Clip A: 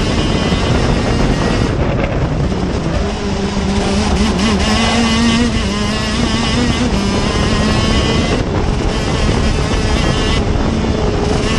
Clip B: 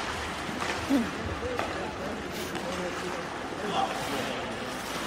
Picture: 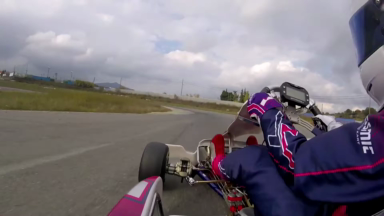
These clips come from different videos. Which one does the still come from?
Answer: A